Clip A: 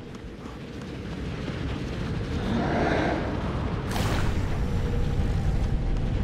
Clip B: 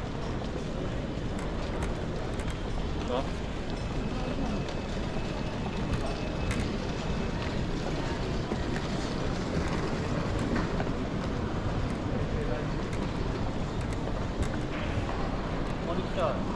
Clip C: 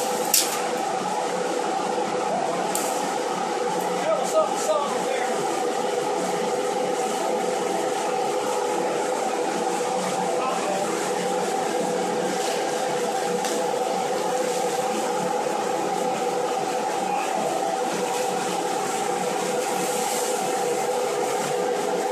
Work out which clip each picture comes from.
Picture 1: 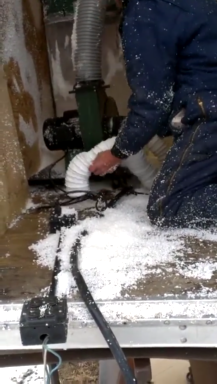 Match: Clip C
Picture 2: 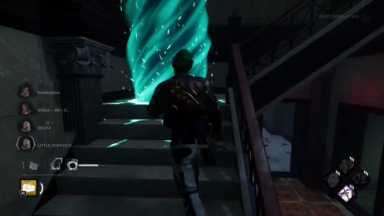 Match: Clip A